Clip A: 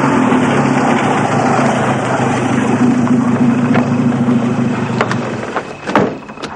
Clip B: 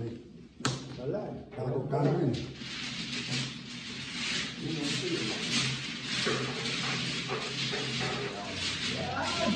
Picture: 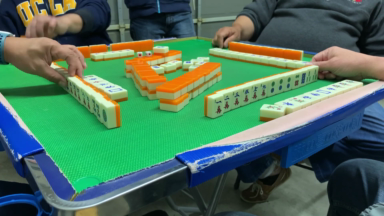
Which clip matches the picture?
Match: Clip B